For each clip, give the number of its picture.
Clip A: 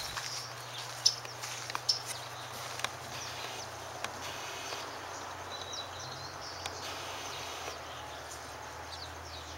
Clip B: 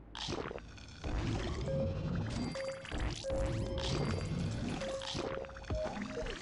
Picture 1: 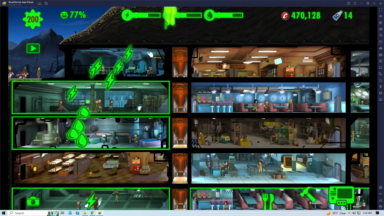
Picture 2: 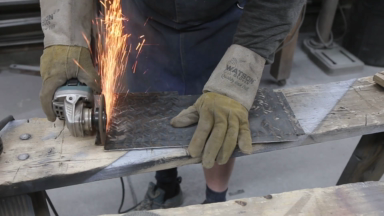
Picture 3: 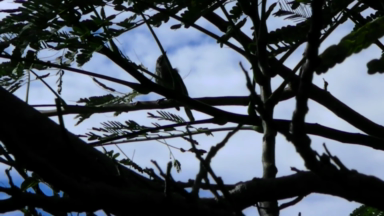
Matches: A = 3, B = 1